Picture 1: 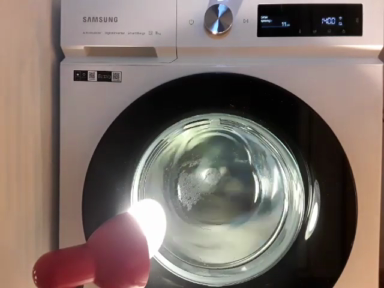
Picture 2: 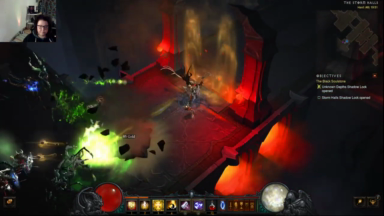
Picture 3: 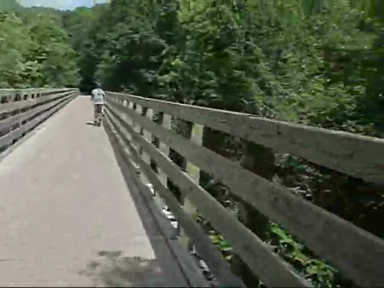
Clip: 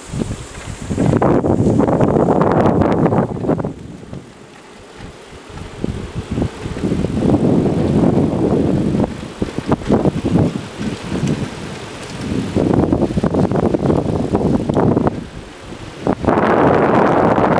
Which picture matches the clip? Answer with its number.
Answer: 3